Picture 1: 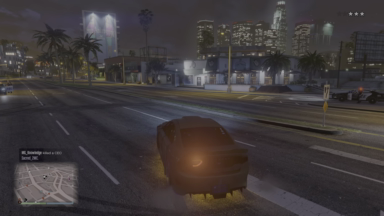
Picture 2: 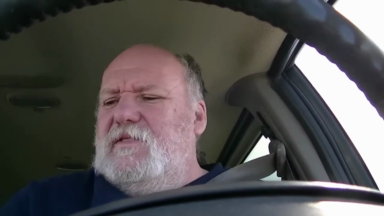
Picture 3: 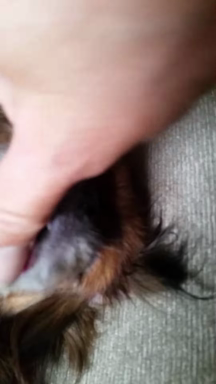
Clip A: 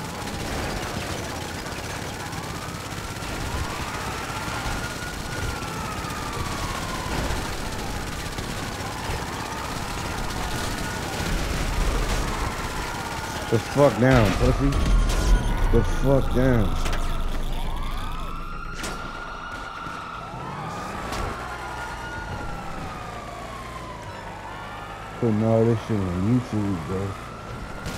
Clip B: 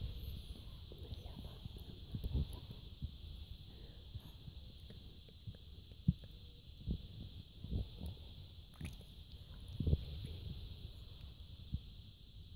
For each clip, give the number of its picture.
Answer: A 1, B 3